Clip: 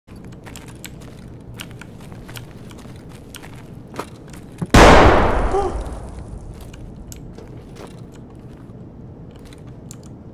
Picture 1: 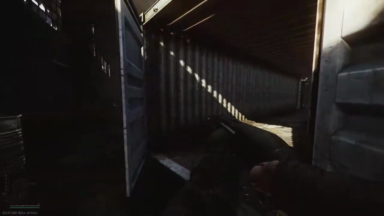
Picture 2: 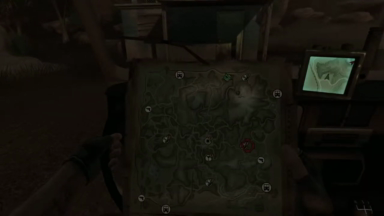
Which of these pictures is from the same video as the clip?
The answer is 1